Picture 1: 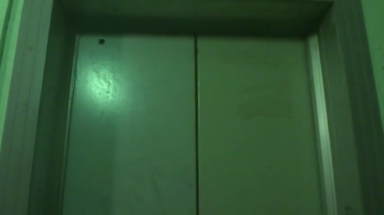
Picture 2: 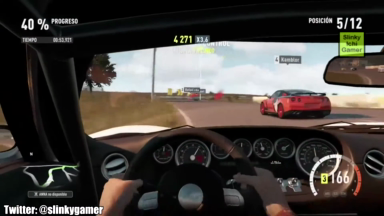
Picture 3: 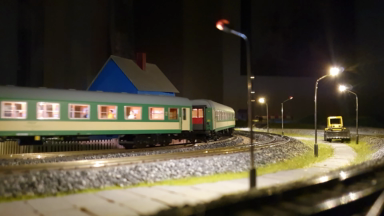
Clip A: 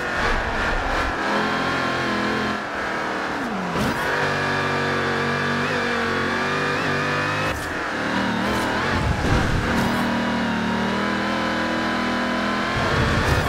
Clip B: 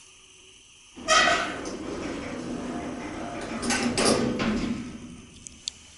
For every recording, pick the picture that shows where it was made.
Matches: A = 2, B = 1